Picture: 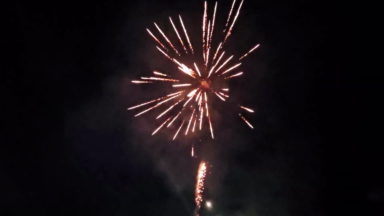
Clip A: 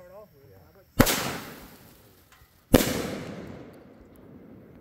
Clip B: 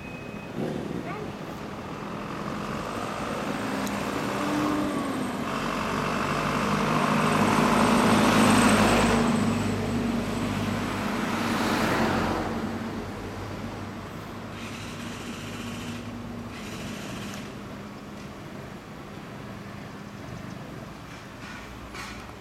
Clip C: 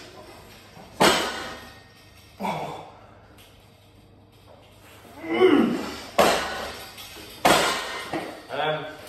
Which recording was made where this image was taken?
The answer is A